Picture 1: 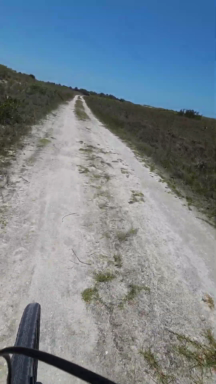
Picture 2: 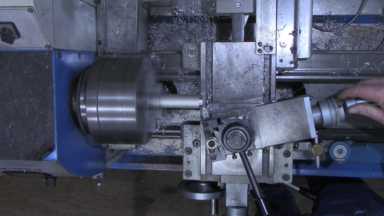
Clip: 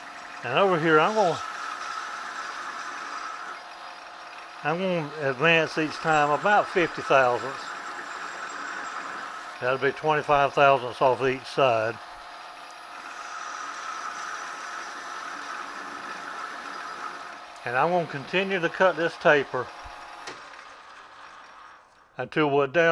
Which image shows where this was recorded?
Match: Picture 2